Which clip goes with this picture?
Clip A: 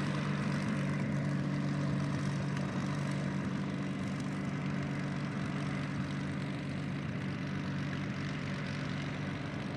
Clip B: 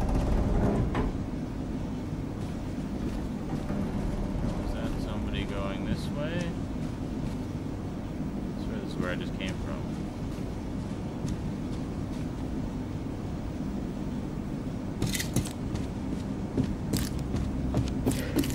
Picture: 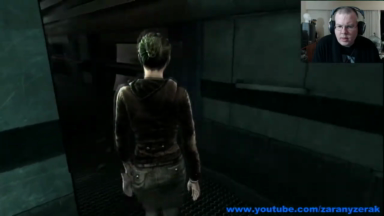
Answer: B